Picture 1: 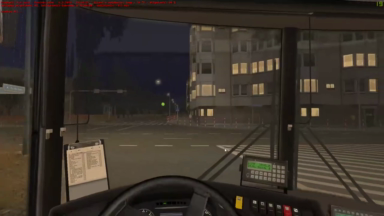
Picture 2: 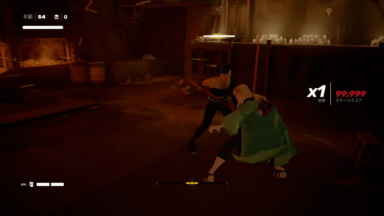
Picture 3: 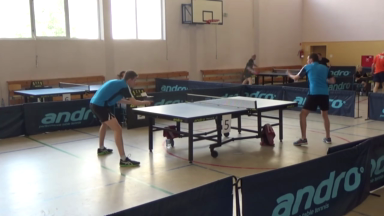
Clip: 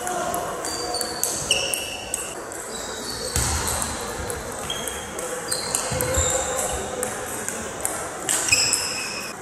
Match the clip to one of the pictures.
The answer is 3